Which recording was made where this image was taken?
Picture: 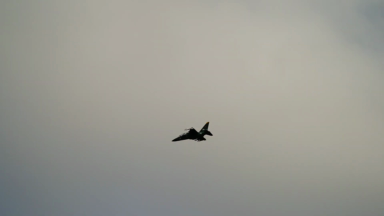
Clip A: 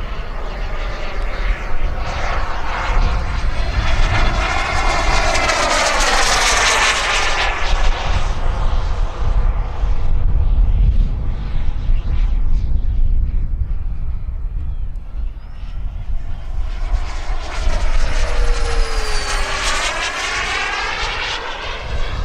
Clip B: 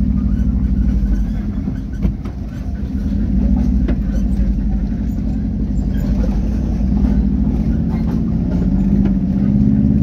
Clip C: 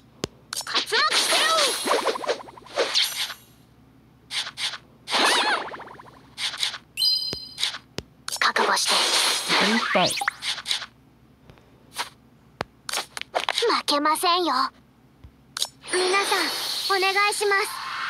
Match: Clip A